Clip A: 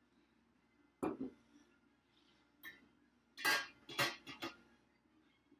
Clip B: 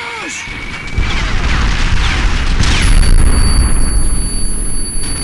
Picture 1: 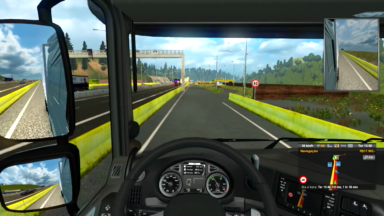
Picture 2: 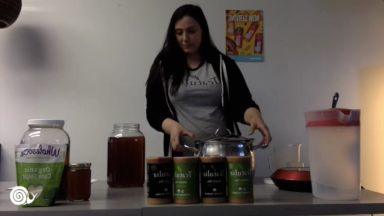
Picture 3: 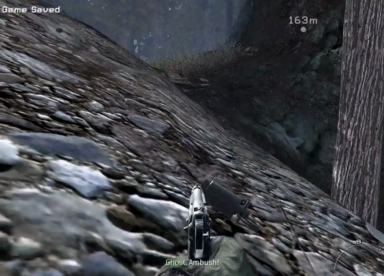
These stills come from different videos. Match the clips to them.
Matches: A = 2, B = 3